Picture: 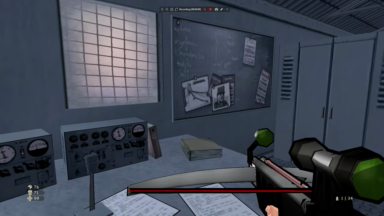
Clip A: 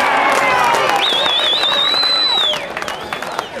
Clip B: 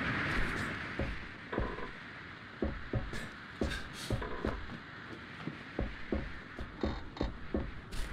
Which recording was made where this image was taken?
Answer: B